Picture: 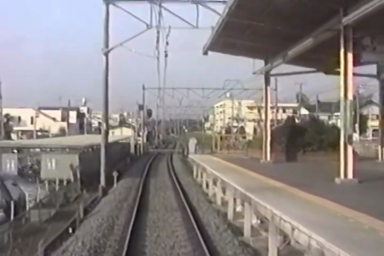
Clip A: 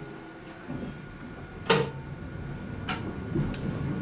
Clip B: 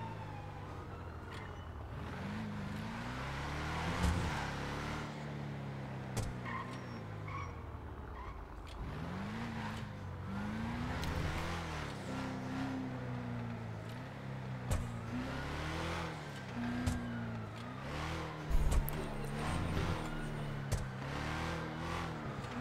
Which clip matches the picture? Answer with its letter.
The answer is A